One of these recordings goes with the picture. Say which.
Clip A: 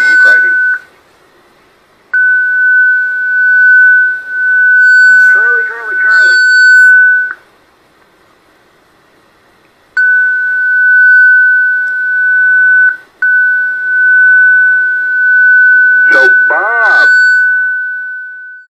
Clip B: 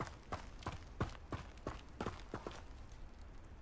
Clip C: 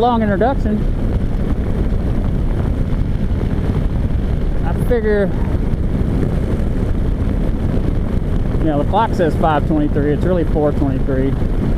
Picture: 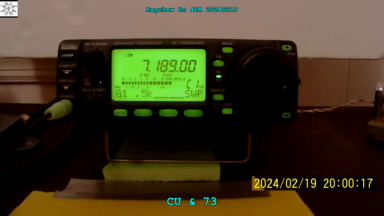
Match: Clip A